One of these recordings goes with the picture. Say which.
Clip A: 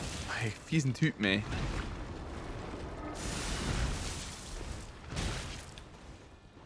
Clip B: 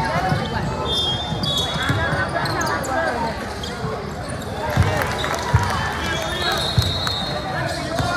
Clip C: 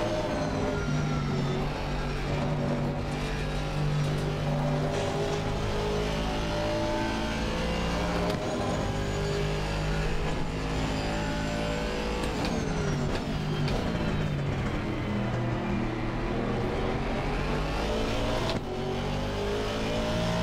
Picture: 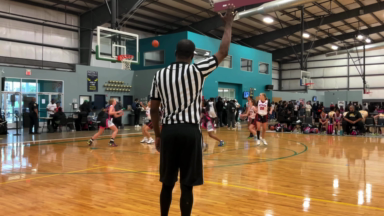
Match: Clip B